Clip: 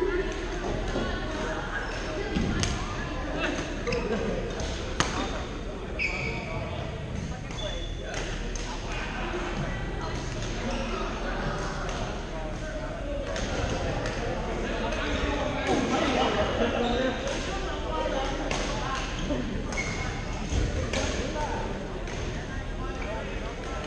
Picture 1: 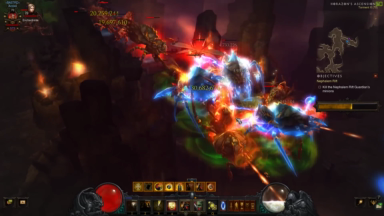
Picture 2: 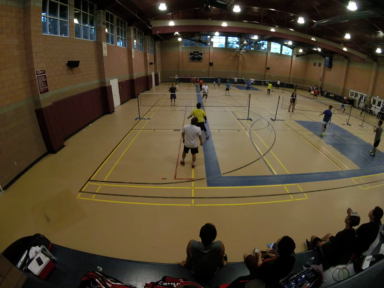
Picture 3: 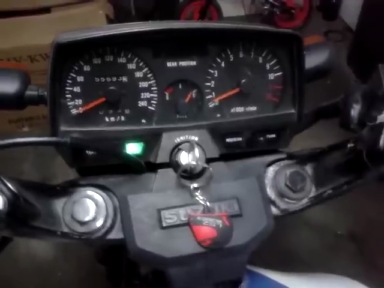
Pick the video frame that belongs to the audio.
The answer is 2